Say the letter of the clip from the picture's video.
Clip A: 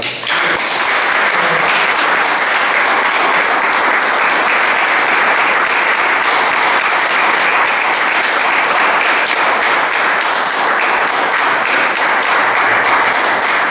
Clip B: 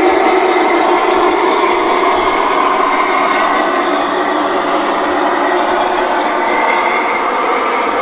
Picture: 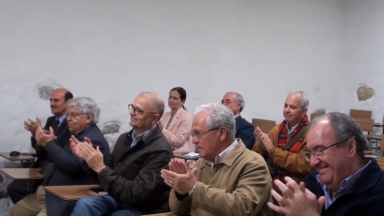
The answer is A